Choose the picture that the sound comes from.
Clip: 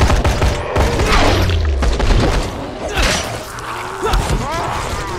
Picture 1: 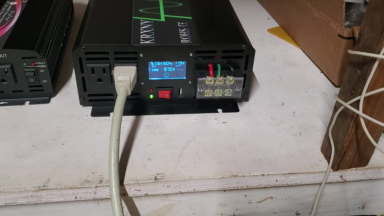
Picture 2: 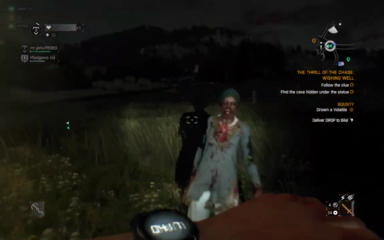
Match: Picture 2